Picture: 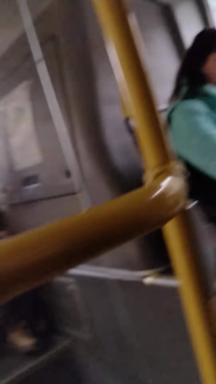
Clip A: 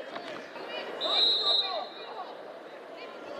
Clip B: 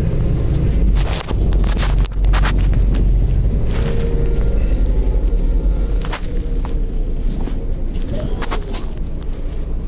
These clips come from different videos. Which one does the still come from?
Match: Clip B